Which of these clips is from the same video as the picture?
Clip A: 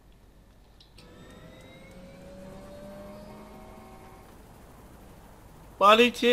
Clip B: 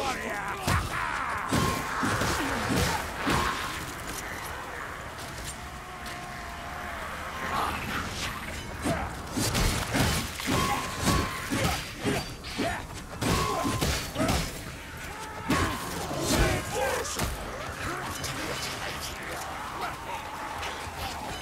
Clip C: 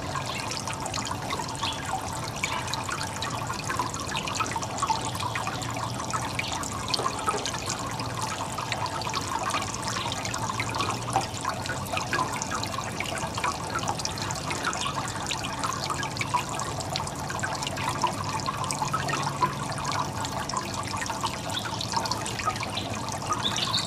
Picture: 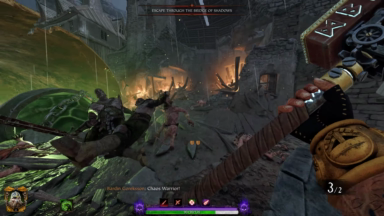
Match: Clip B